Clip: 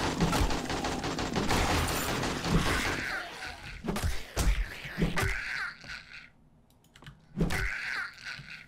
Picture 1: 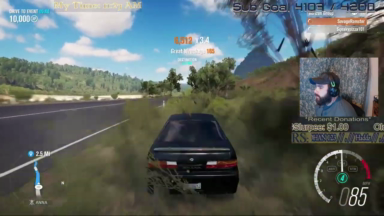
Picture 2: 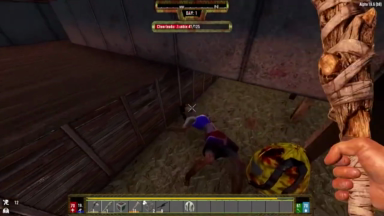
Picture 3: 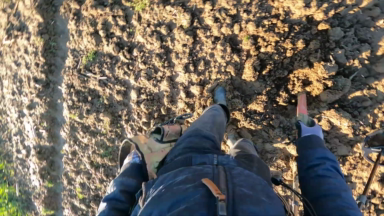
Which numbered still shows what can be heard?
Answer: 2